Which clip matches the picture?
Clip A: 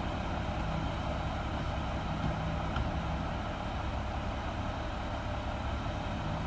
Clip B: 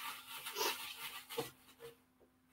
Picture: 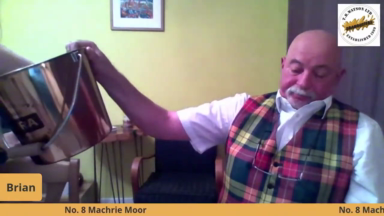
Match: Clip B